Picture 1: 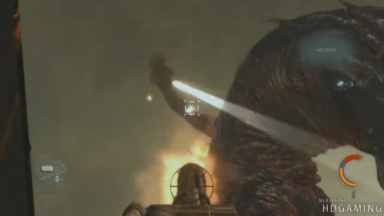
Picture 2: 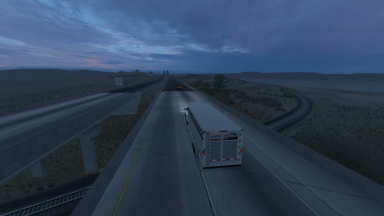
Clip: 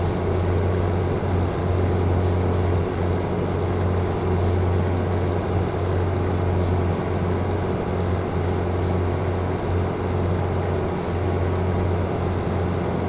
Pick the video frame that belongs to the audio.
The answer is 2